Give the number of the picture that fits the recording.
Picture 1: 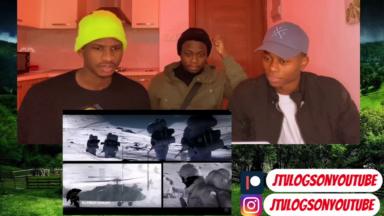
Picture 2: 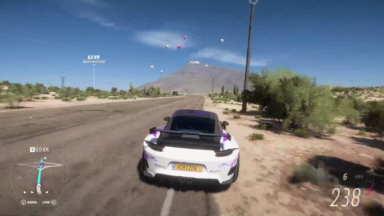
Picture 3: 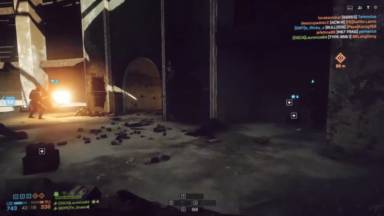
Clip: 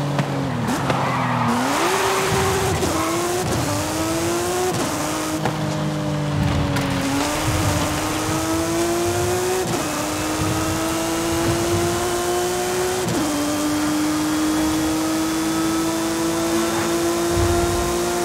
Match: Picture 2